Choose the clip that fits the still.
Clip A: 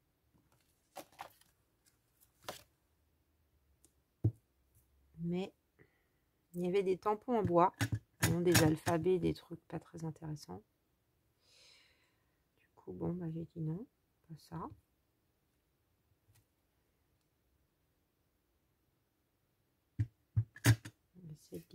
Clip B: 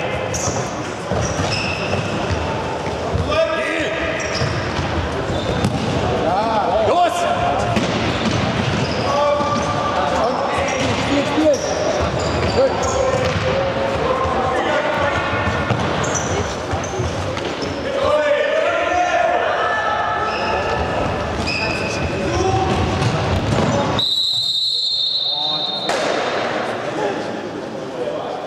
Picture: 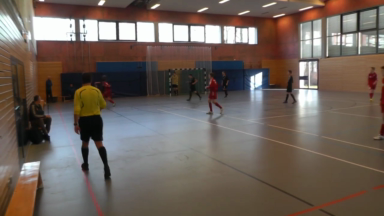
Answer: B